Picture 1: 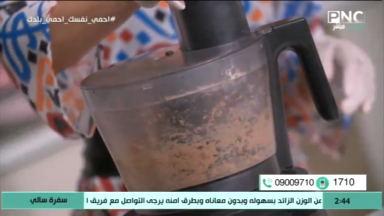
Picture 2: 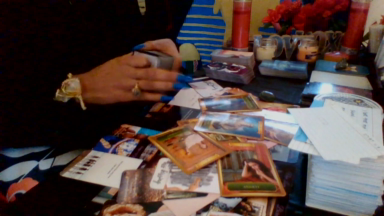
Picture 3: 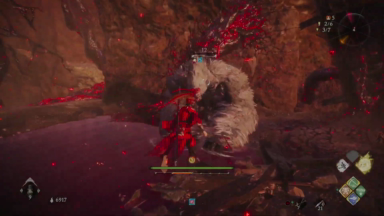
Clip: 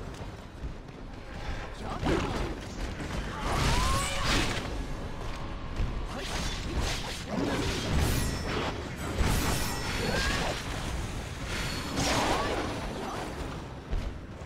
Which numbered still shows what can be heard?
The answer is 3